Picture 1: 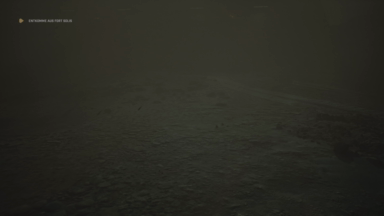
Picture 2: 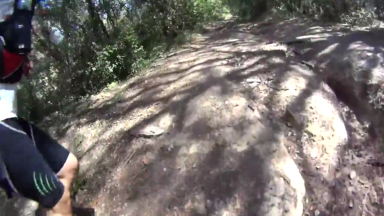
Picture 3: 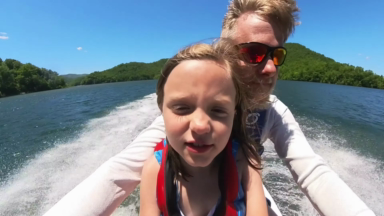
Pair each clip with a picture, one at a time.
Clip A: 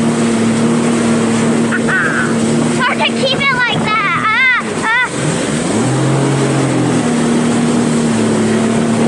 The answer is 3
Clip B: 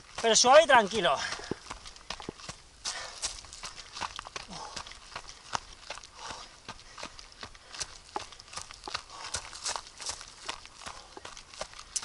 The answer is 2